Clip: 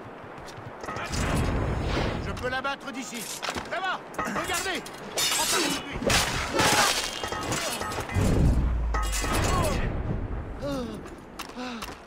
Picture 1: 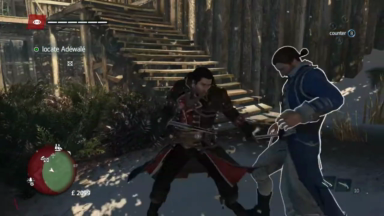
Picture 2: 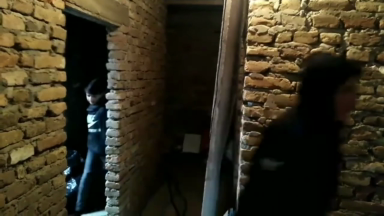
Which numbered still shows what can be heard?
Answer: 1